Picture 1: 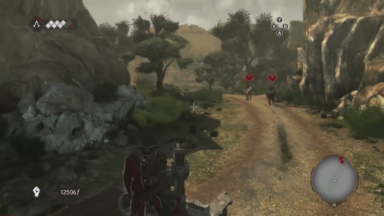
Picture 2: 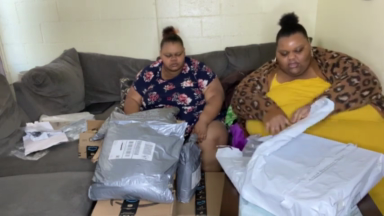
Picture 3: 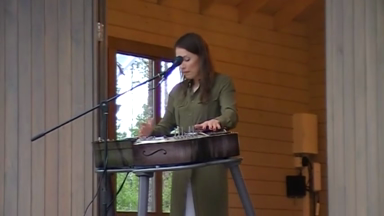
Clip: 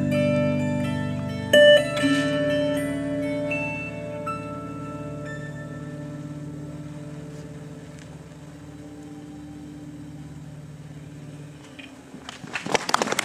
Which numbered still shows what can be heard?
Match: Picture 3